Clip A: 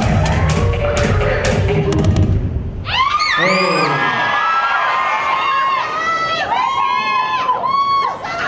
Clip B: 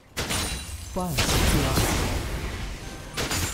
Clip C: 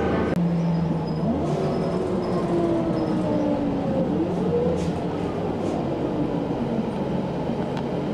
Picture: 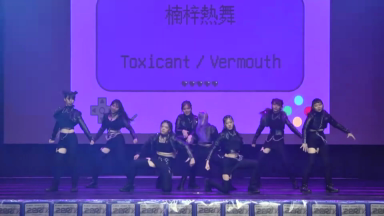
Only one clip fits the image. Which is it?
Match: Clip A